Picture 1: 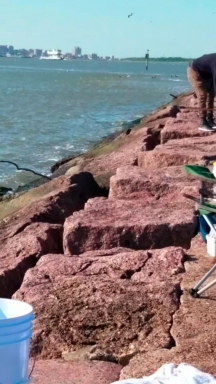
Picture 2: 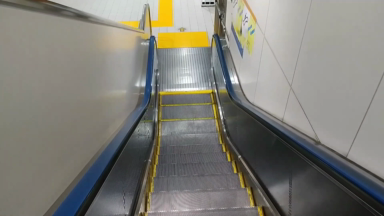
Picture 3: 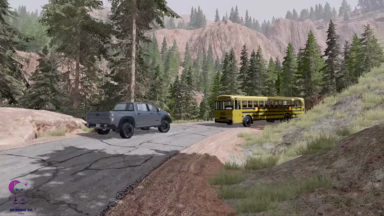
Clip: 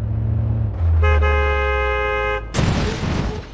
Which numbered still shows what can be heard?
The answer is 3